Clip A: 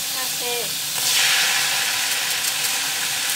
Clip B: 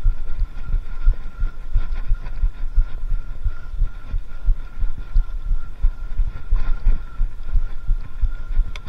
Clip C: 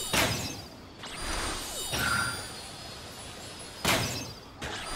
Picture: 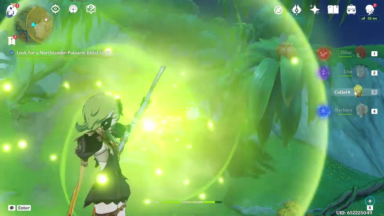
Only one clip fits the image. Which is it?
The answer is C